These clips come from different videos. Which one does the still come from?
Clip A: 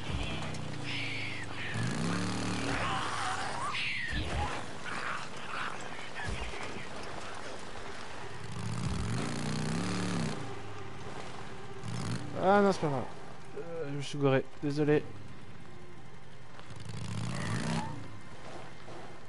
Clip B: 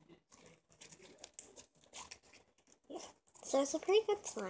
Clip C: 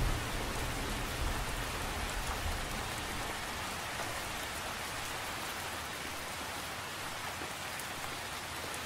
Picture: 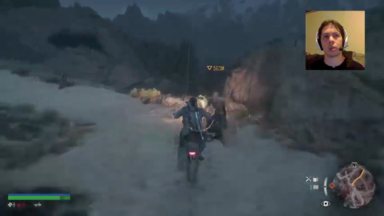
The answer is A